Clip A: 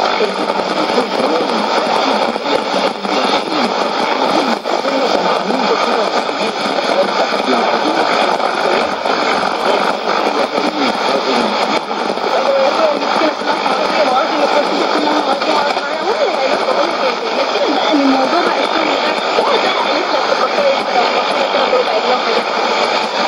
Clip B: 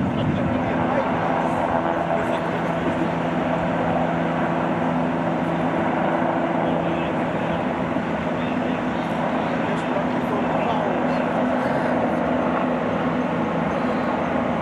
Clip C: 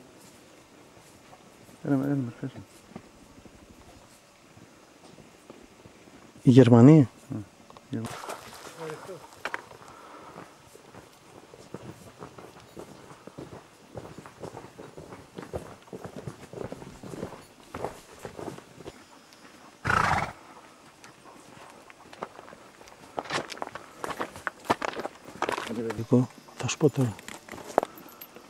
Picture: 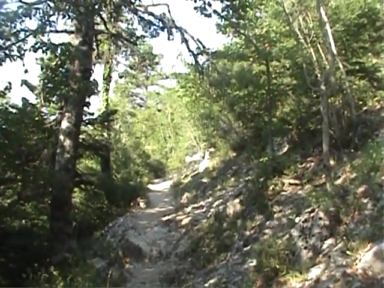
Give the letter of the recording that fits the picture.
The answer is C